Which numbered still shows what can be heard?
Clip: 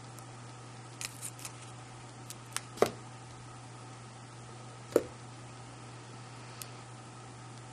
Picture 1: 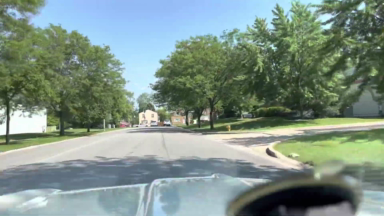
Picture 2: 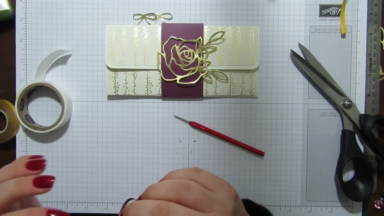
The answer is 2